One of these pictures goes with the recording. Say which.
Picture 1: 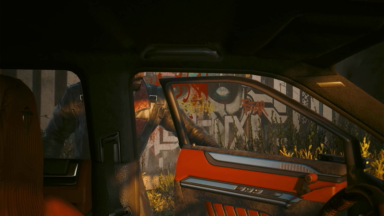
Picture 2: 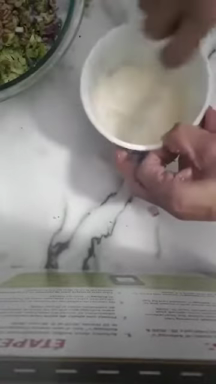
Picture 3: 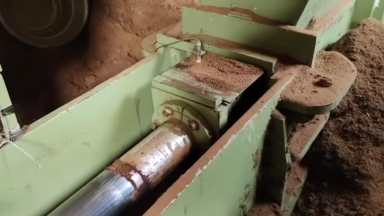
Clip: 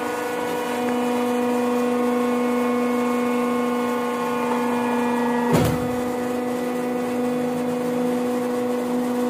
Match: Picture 3